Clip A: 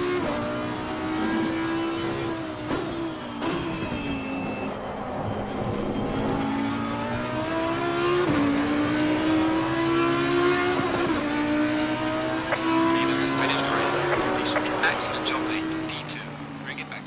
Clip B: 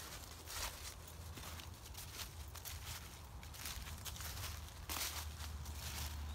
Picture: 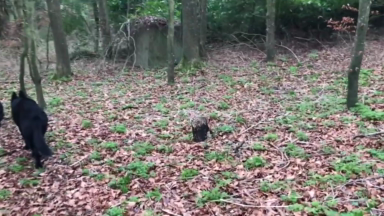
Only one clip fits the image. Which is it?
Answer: B